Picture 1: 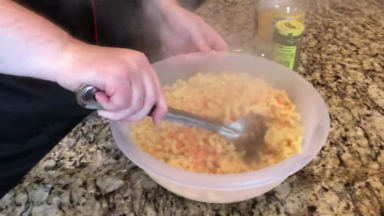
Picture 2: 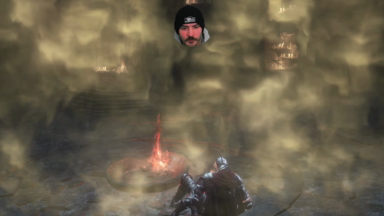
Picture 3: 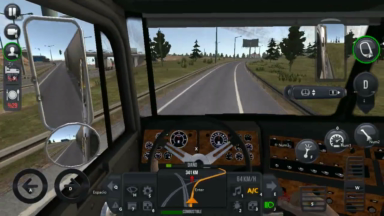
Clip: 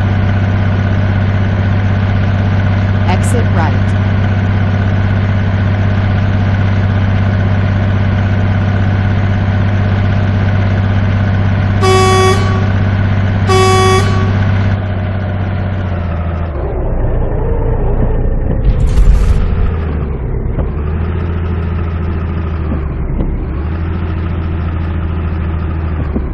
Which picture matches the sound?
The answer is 3